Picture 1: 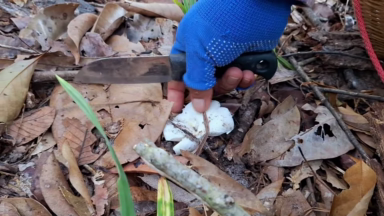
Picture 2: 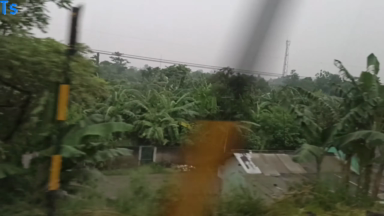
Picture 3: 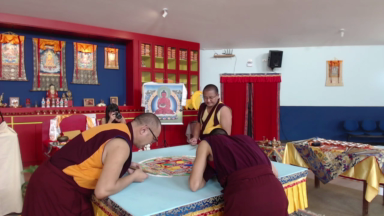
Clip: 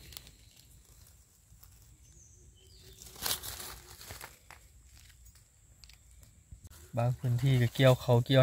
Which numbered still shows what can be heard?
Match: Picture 1